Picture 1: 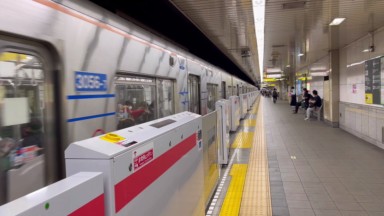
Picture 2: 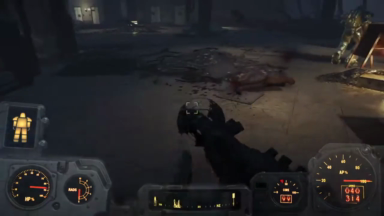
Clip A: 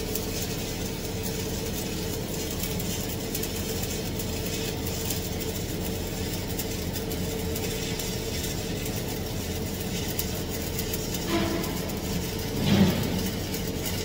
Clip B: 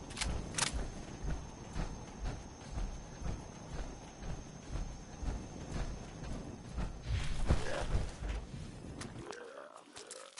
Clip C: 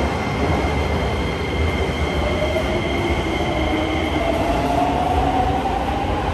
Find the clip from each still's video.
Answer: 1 C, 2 B